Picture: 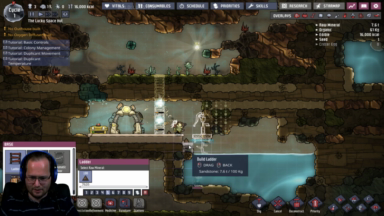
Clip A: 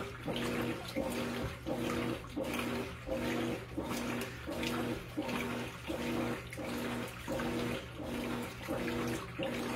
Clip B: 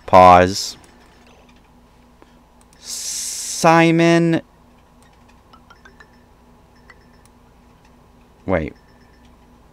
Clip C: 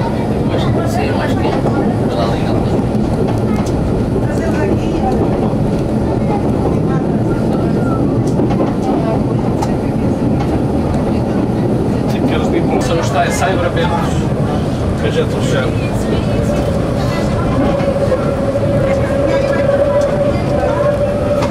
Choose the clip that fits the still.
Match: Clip B